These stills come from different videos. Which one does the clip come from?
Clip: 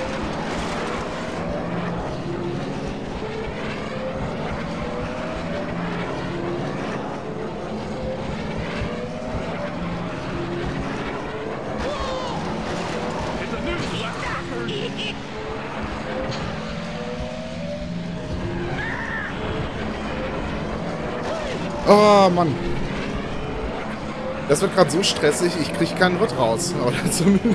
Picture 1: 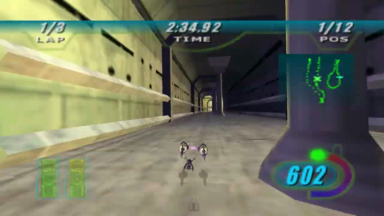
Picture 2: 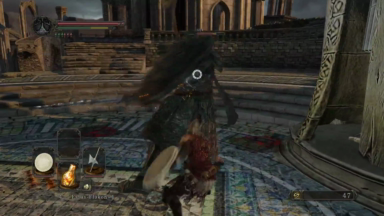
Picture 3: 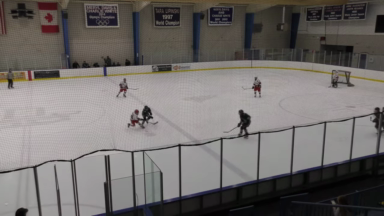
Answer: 1